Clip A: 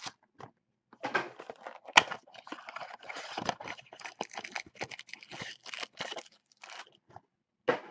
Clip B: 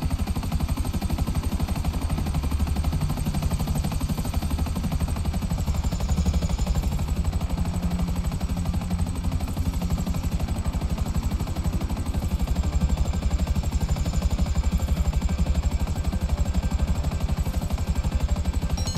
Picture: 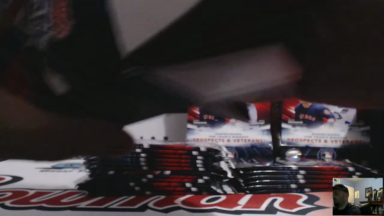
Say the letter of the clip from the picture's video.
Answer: A